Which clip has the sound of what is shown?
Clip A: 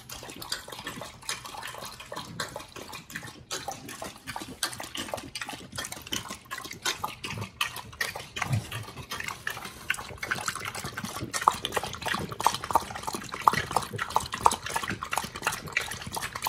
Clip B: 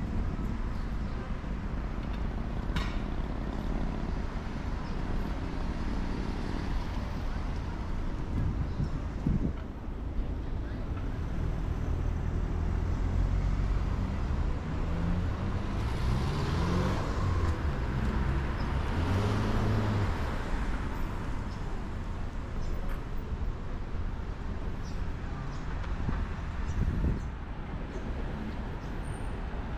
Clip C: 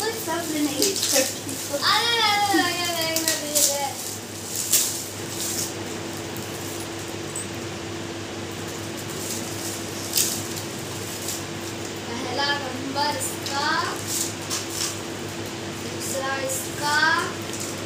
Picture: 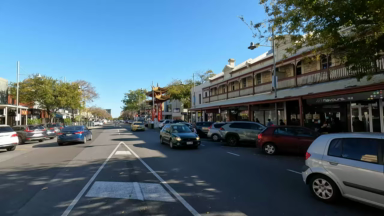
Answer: B